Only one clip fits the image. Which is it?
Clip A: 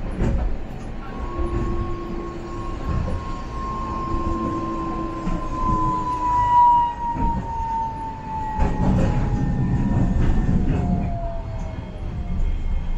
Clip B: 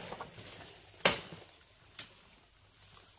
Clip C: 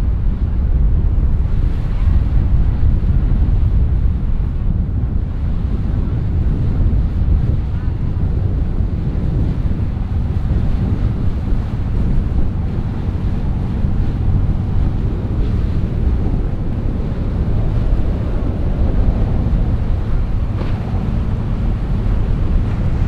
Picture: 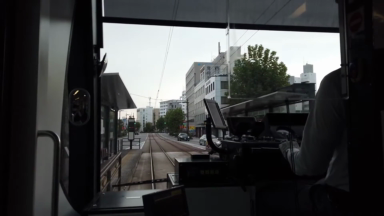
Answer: A